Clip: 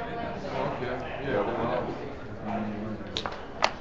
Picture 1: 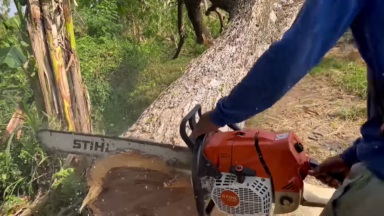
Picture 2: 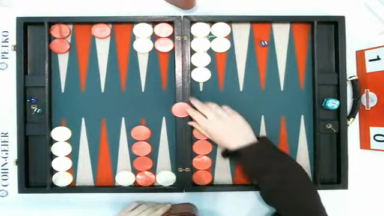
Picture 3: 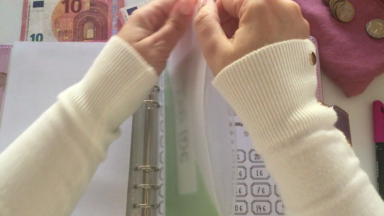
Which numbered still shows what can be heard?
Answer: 2